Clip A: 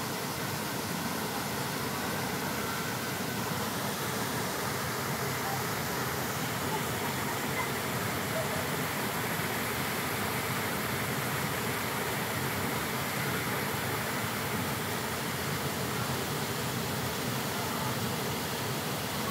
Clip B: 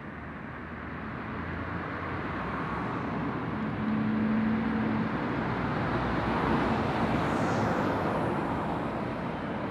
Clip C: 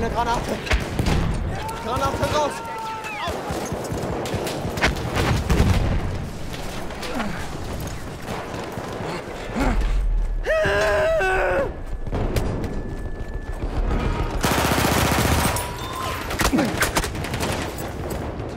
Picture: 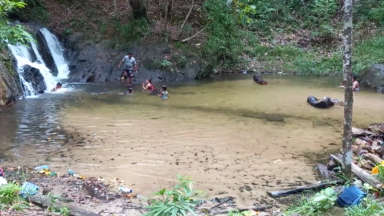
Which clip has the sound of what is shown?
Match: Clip A